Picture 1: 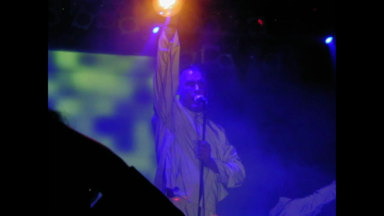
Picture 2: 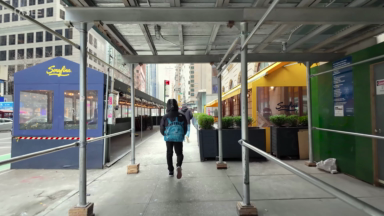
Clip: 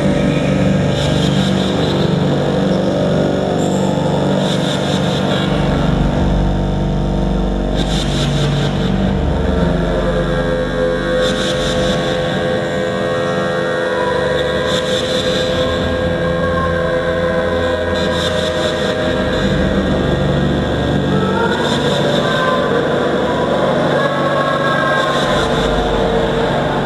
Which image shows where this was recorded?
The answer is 1